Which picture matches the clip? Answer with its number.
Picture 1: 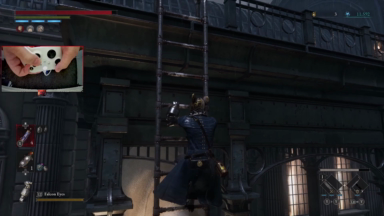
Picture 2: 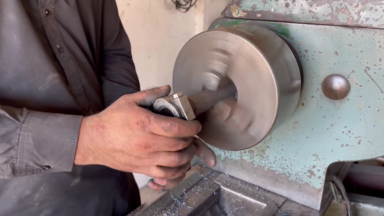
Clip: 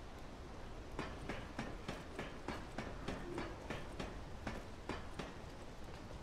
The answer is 1